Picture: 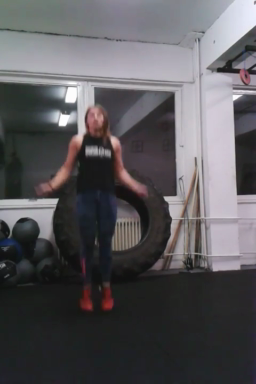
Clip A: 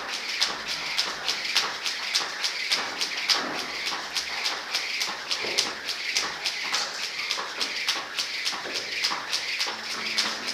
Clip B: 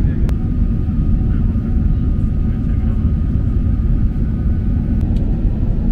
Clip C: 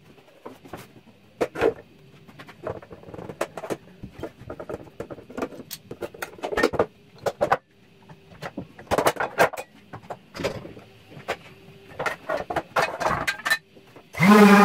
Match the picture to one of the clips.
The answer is A